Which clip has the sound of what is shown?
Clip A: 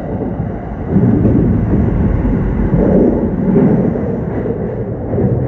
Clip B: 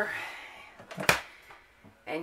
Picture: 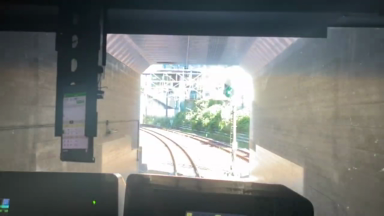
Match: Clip A